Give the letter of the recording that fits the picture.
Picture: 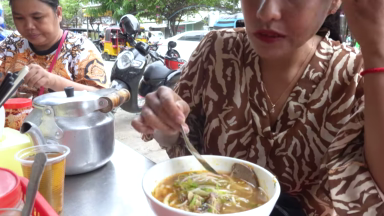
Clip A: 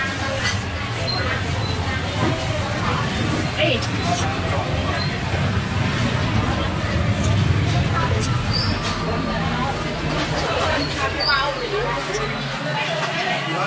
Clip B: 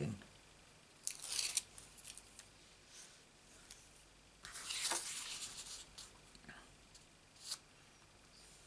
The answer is A